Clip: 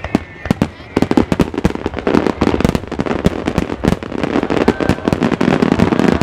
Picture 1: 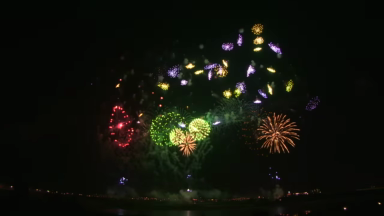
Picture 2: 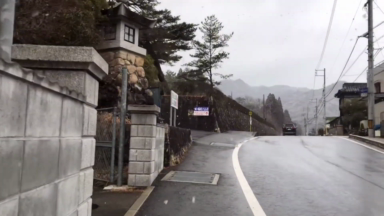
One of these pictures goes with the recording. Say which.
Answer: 1